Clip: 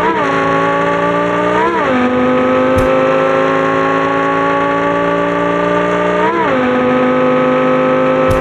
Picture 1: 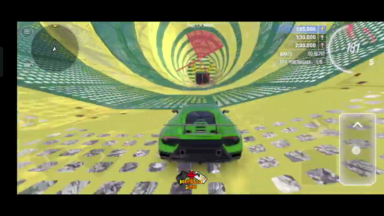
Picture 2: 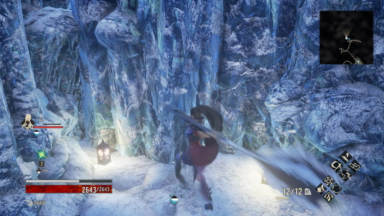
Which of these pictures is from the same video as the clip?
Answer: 1